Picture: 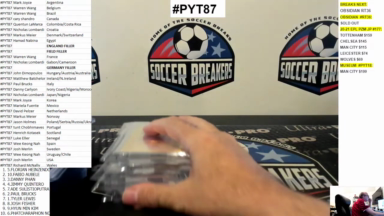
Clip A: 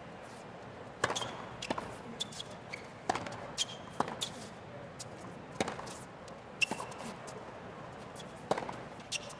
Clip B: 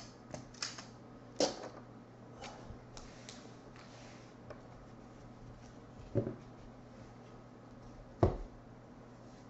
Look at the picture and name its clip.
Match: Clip B